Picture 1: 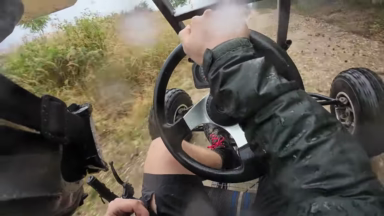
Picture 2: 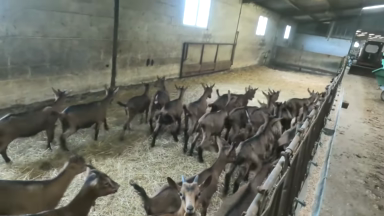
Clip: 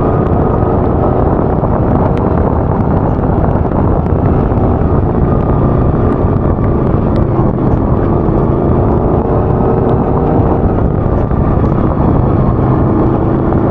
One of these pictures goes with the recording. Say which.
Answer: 1